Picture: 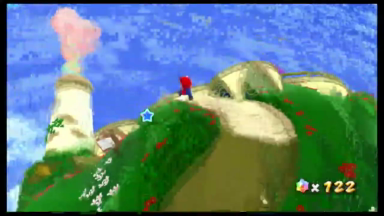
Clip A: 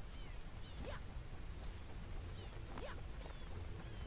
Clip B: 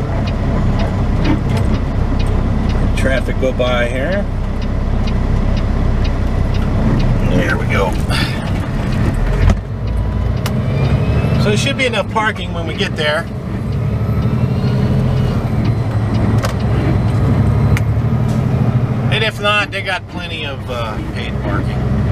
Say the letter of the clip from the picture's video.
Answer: A